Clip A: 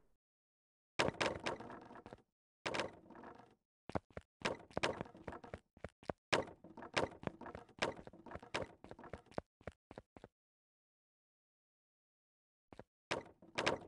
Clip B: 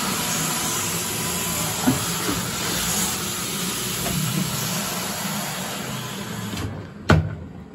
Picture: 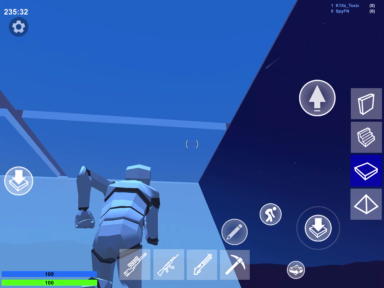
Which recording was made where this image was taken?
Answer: A